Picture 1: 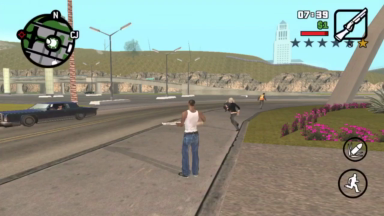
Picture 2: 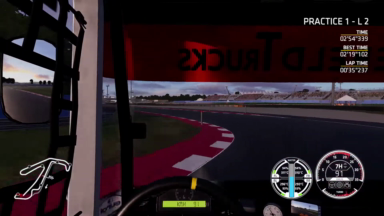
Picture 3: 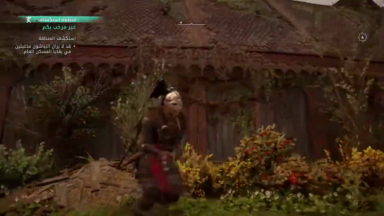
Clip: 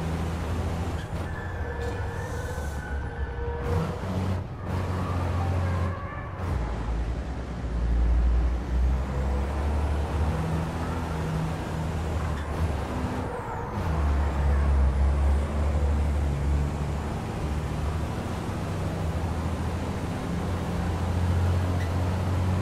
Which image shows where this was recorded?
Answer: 2